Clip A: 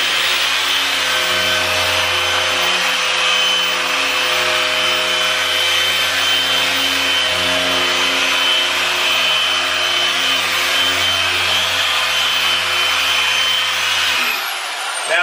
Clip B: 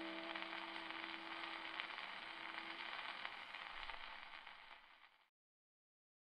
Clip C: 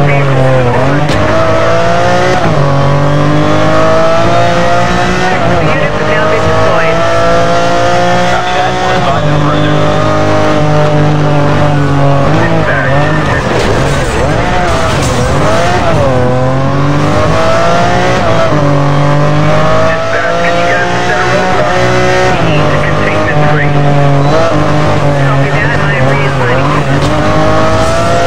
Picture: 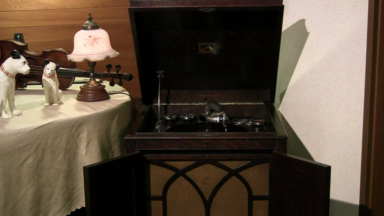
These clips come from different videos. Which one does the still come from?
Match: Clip B